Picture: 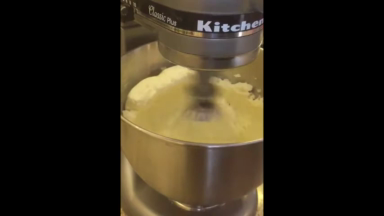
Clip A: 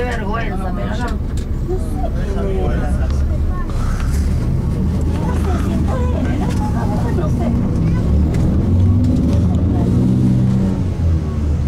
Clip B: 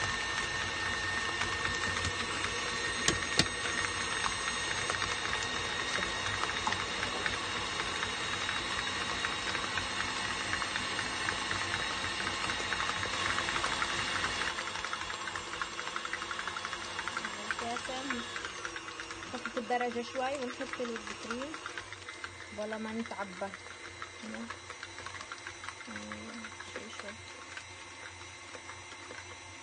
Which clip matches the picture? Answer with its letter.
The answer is B